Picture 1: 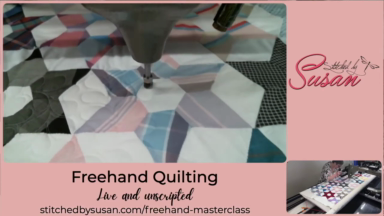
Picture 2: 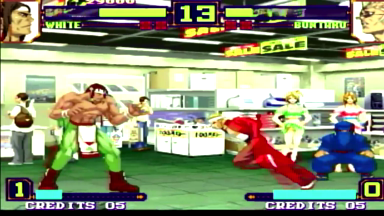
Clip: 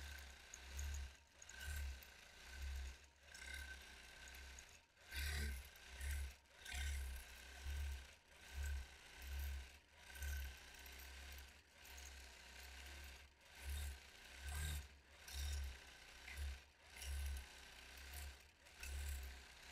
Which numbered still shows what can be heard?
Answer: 1